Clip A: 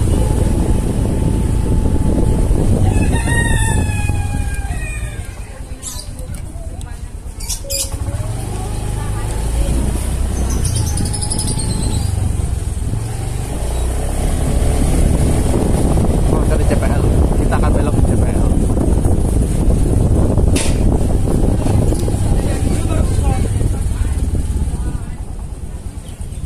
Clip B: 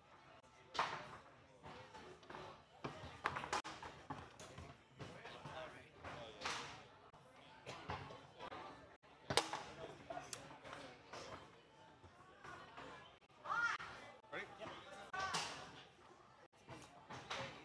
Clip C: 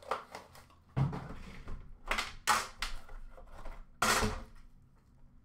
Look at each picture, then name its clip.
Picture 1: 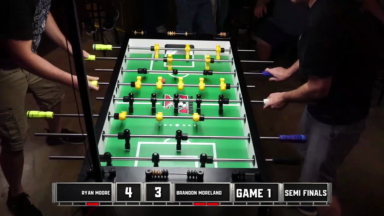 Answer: B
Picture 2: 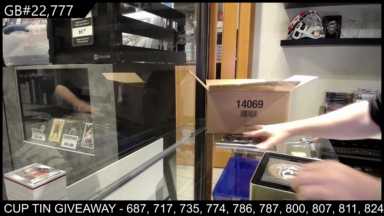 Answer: C